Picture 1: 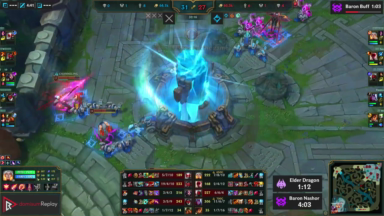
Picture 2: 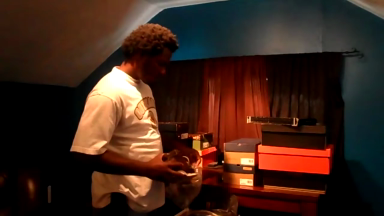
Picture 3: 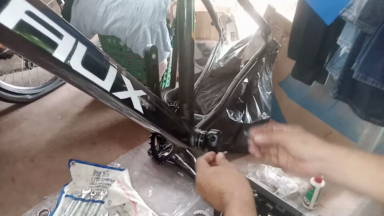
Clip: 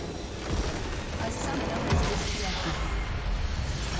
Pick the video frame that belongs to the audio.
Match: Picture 1